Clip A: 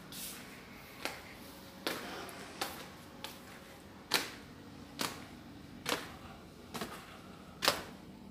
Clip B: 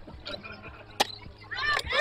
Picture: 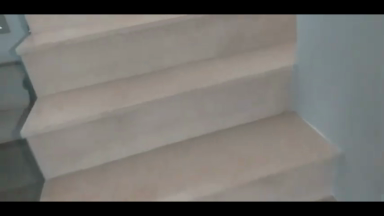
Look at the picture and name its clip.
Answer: A